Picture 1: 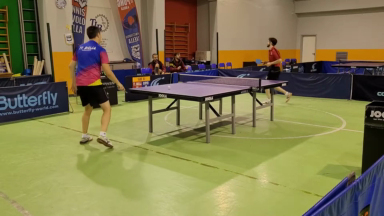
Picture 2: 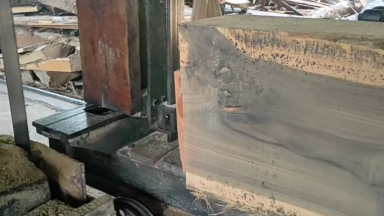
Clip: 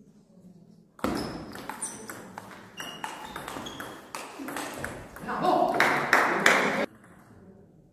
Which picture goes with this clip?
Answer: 1